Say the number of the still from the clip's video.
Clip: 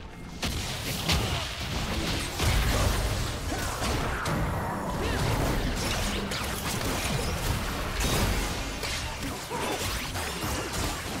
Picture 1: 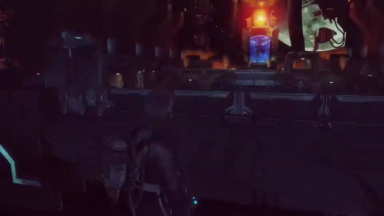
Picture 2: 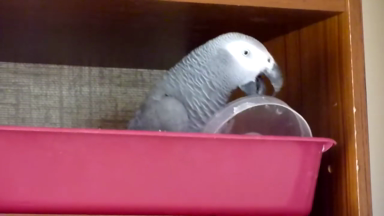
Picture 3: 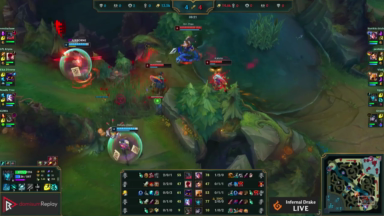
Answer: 3